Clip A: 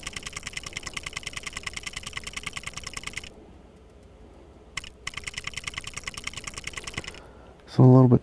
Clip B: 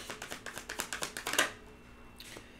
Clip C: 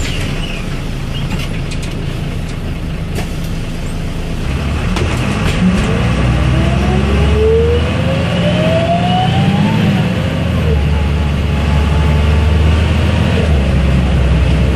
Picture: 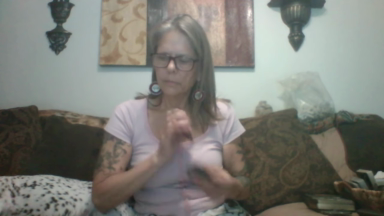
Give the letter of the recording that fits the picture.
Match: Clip B